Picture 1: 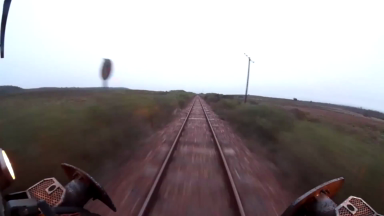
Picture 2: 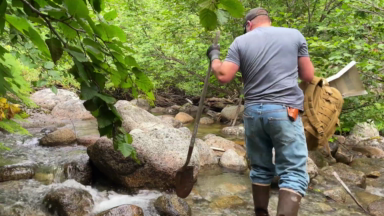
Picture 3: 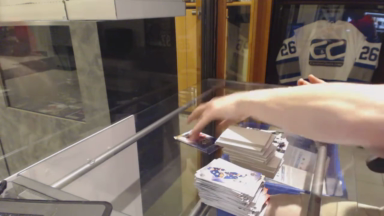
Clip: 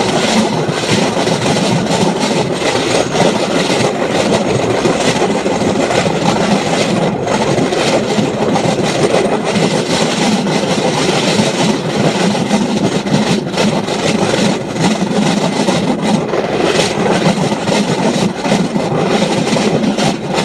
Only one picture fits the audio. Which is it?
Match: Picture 1